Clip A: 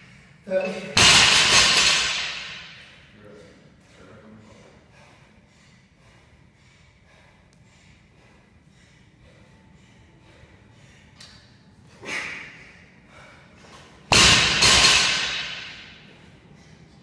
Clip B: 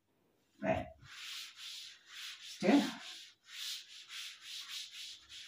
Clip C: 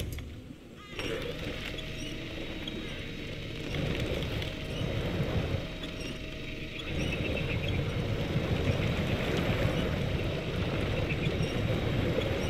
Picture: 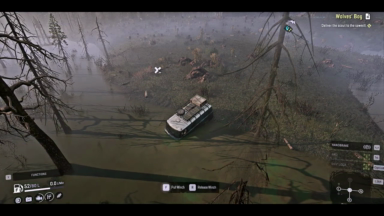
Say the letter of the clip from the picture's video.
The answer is C